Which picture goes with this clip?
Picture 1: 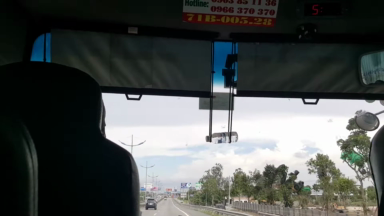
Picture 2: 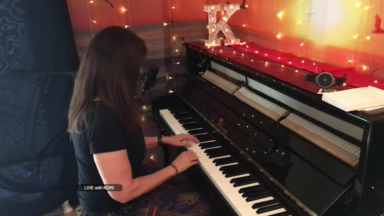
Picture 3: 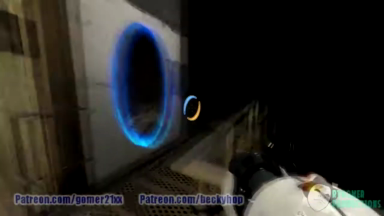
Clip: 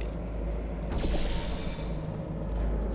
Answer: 3